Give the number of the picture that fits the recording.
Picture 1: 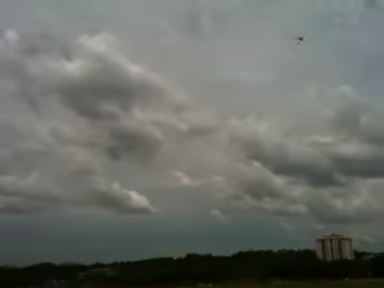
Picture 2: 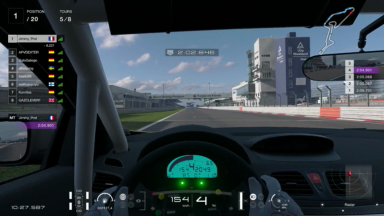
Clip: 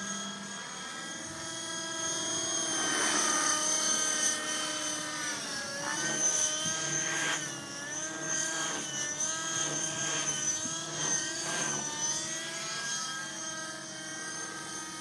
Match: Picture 1